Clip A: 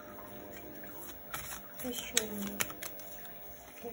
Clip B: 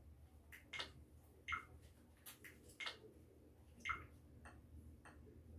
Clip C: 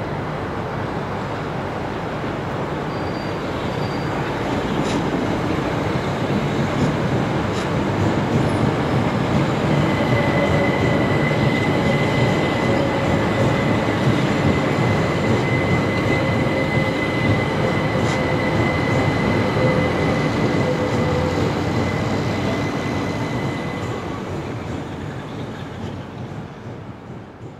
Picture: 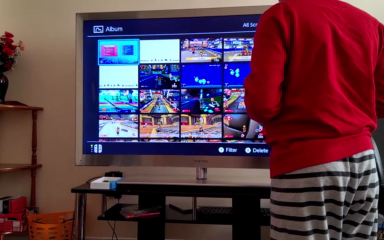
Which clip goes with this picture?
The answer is B